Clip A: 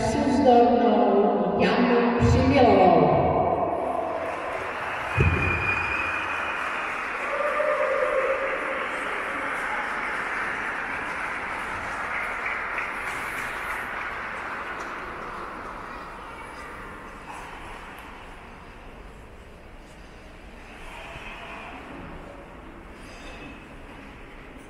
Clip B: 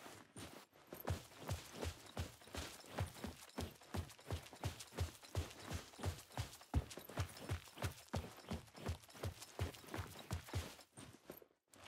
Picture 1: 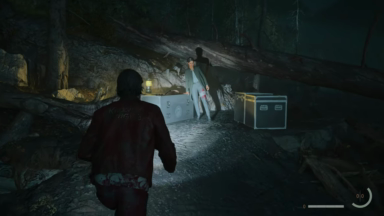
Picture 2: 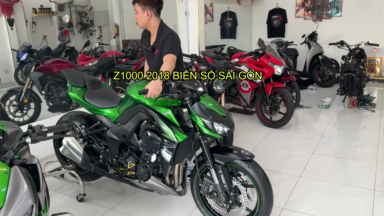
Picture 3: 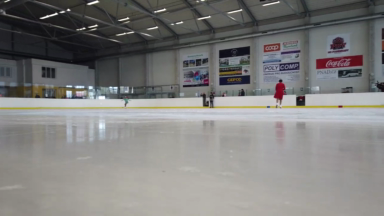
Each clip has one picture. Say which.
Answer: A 3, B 1